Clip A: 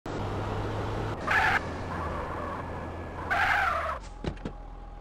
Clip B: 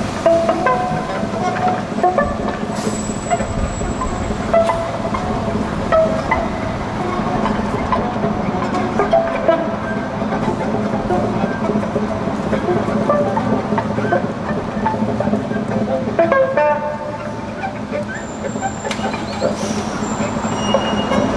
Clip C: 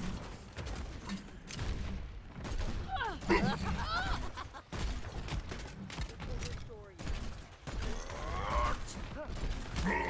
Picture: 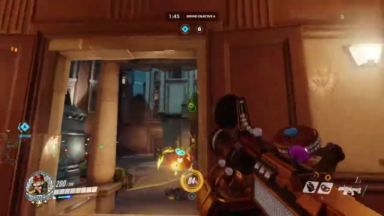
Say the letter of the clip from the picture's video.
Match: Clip C